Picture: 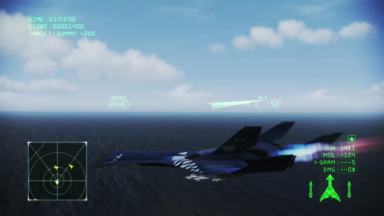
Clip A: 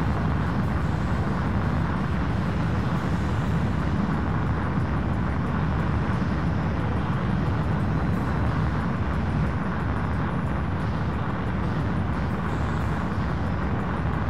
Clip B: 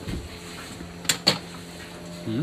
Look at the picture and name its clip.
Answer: A